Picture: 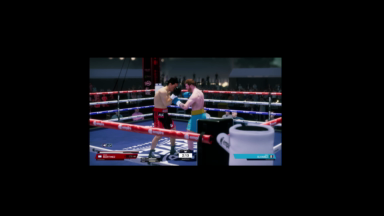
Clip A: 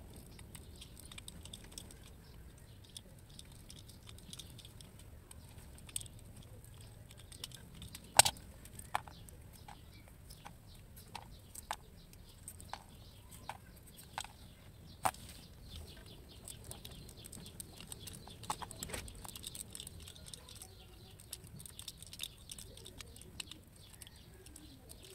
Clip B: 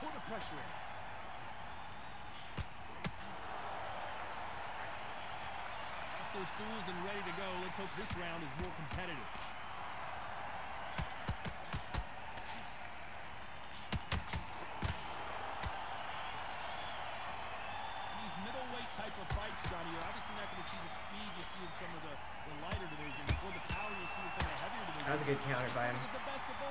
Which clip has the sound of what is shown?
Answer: B